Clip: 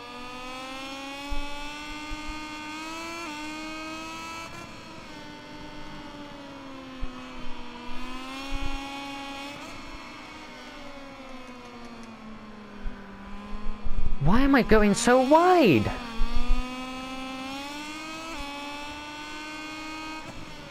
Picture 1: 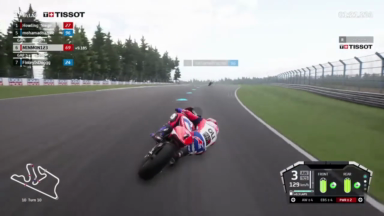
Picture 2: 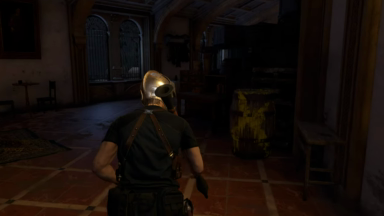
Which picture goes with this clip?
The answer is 1